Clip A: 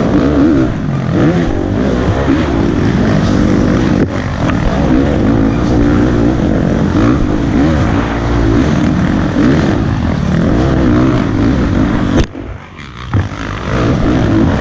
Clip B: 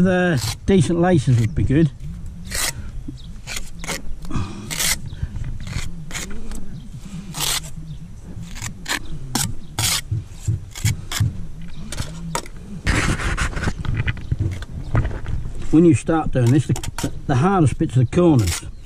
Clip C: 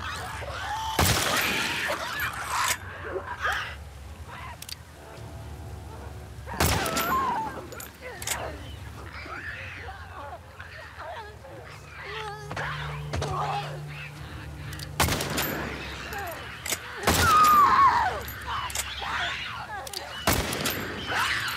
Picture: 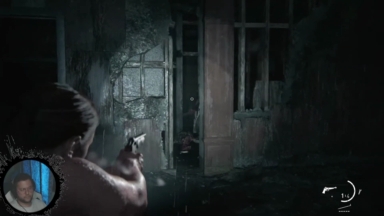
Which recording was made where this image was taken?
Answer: C